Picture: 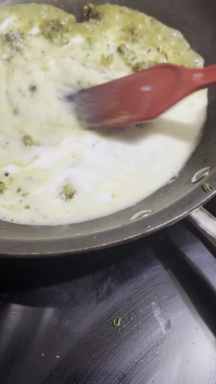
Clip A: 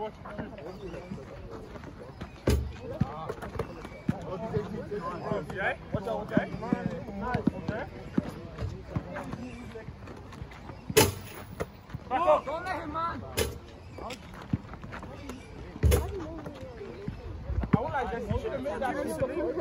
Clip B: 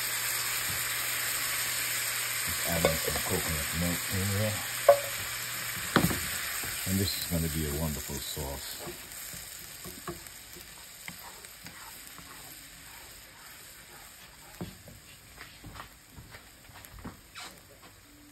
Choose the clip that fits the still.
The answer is B